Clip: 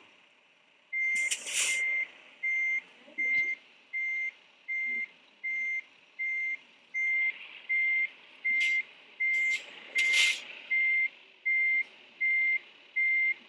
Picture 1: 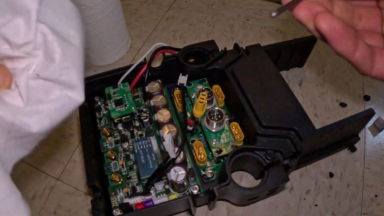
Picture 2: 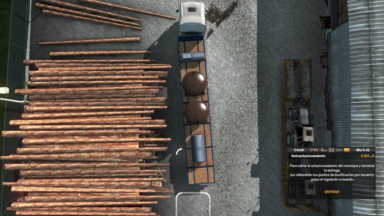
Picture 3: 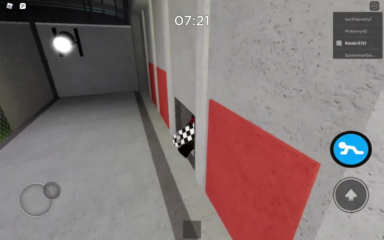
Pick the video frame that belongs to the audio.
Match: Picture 2